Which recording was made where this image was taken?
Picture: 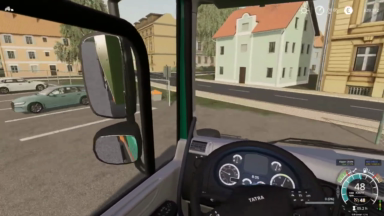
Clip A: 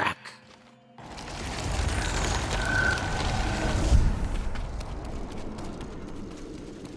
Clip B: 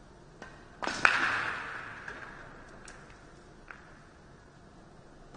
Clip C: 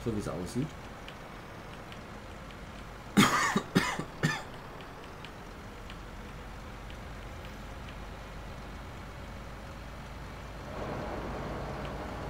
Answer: C